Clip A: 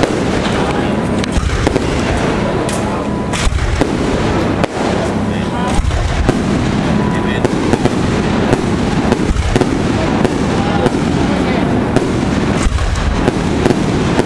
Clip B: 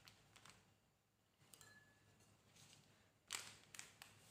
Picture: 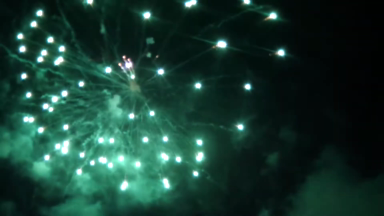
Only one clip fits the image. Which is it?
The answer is A